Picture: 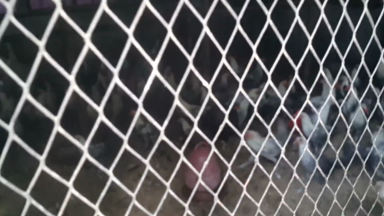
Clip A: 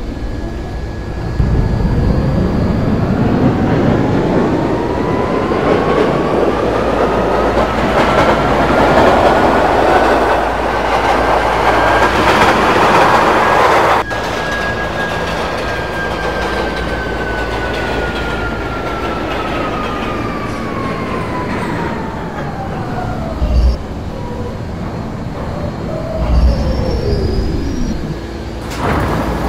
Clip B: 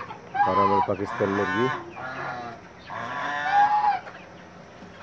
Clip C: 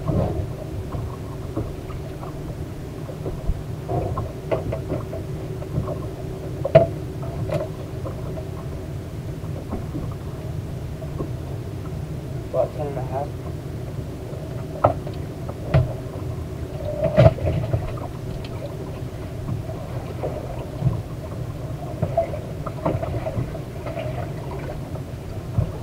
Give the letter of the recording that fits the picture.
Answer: B